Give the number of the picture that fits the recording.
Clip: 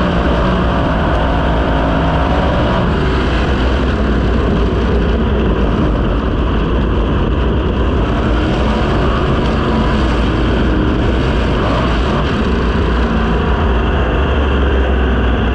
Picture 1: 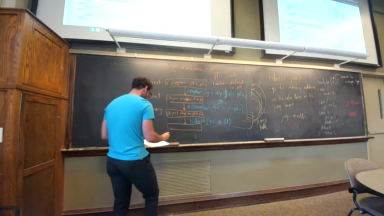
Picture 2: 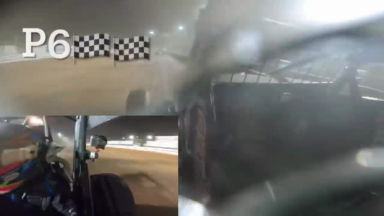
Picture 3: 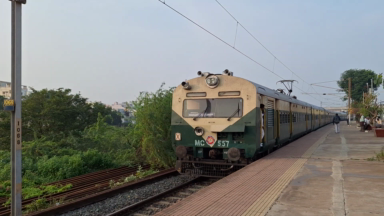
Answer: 2